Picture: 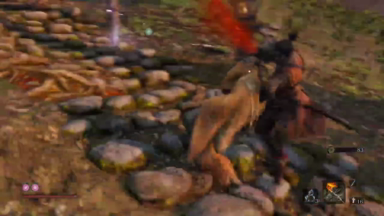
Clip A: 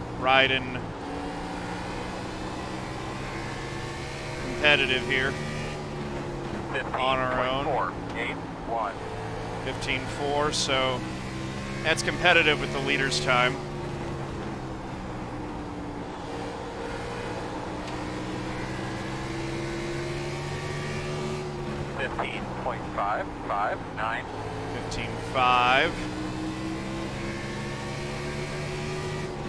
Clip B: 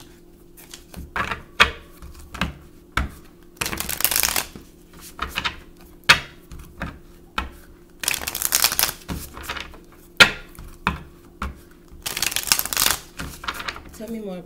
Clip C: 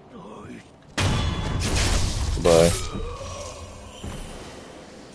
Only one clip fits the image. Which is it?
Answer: C